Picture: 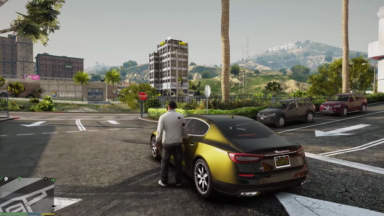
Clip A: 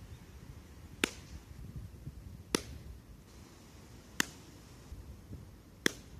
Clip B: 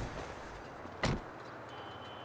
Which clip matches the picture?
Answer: B